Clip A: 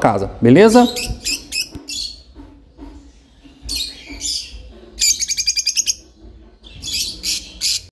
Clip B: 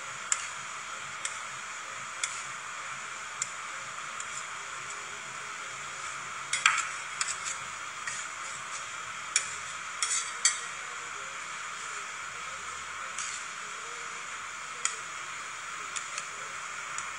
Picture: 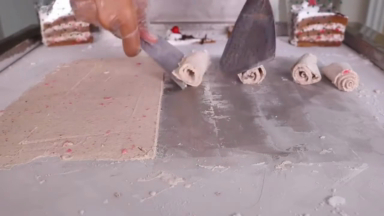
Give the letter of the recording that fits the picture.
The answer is B